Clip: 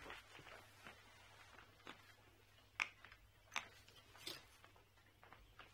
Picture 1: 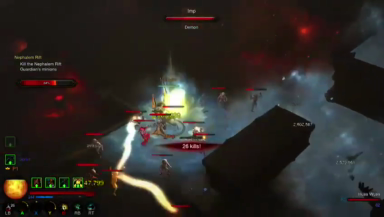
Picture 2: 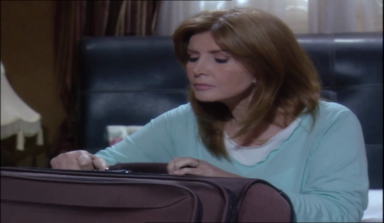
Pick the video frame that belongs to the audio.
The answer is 2